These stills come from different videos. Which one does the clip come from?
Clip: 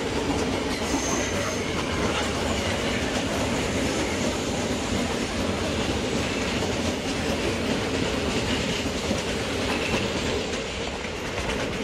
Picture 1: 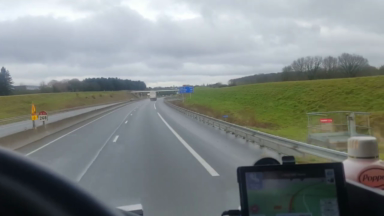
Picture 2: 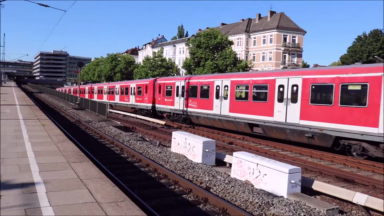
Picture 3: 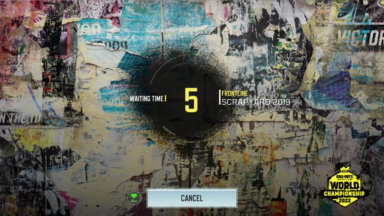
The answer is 2